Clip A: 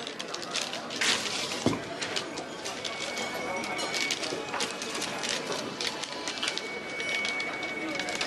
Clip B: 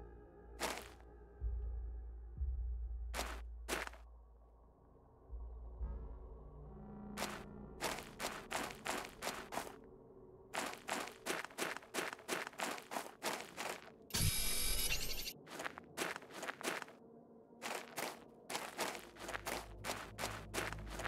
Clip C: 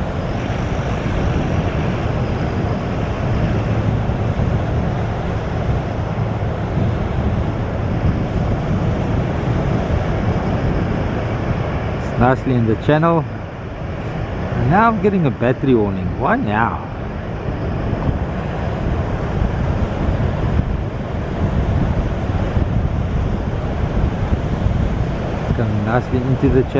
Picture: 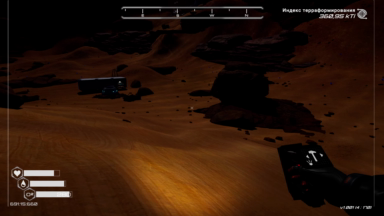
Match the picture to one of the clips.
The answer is B